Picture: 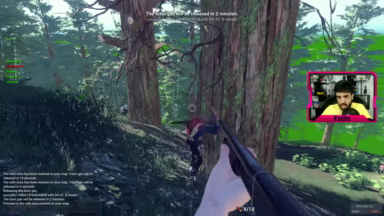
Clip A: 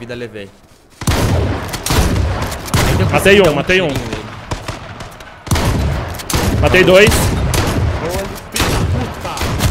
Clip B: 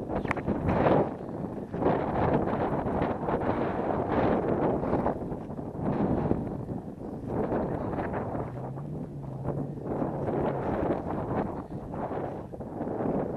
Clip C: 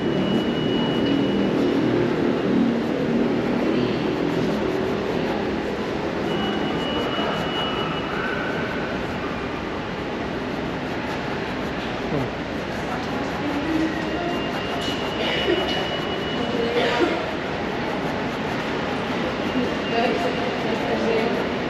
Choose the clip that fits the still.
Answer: A